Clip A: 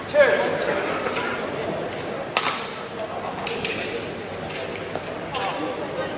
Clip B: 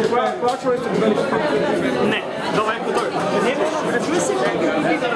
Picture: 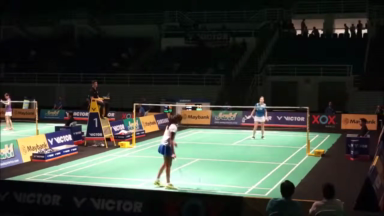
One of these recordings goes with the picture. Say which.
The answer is A